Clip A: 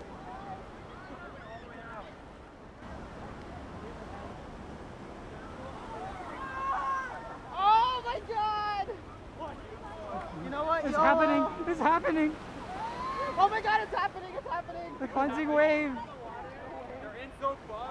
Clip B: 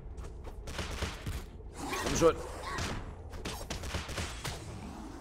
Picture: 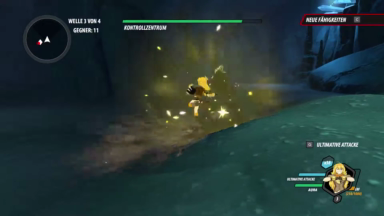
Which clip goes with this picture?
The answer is B